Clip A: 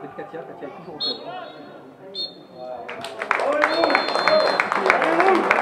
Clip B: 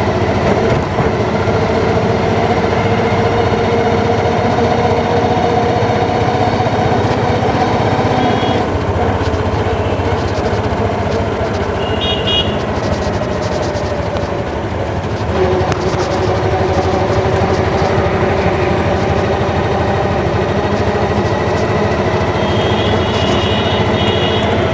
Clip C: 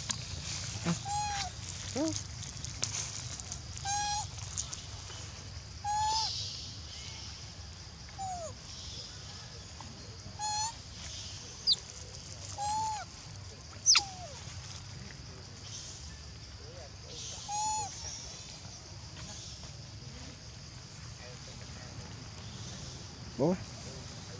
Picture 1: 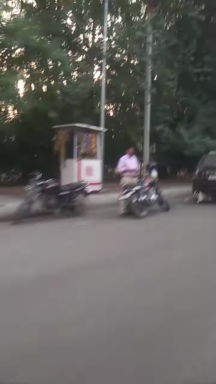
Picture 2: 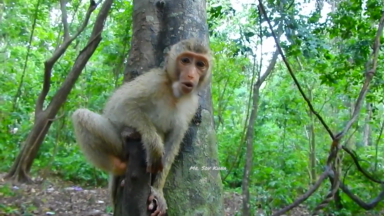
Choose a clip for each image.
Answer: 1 B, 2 C